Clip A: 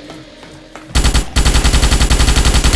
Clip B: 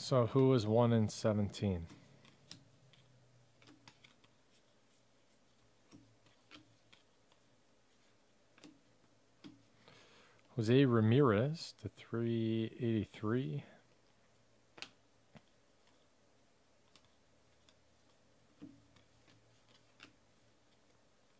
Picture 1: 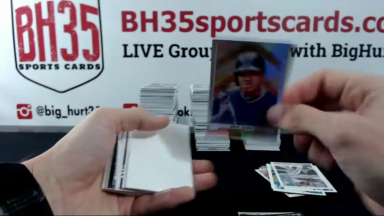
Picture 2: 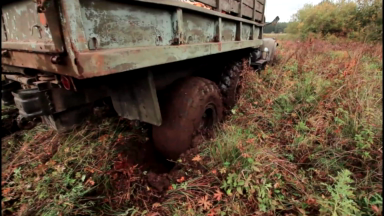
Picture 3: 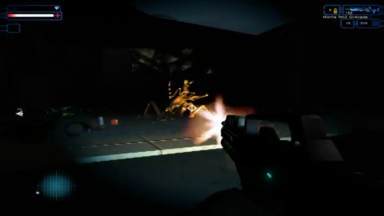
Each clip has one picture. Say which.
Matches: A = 3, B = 1